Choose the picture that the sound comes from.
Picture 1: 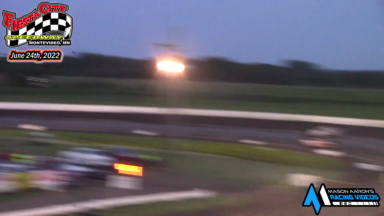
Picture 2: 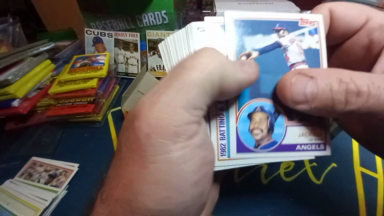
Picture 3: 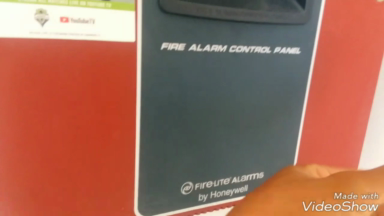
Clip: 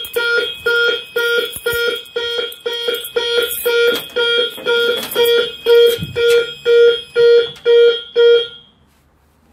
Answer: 3